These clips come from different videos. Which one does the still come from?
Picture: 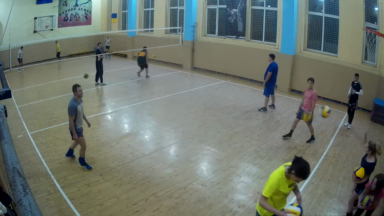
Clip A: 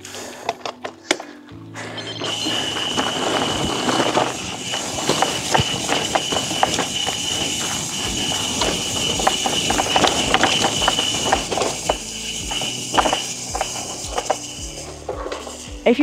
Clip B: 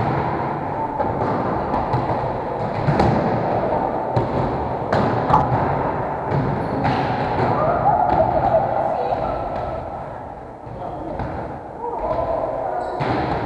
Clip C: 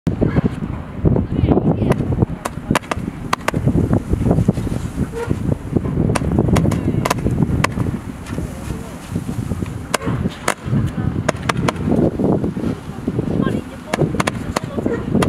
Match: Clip B